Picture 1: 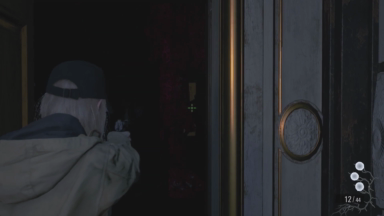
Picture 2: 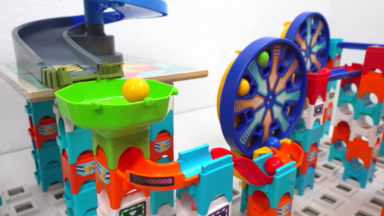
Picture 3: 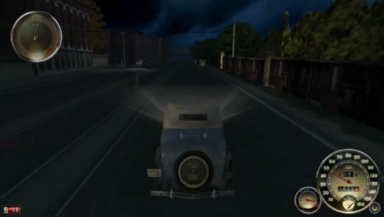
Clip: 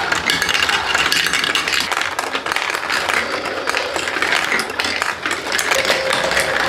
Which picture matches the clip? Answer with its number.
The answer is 2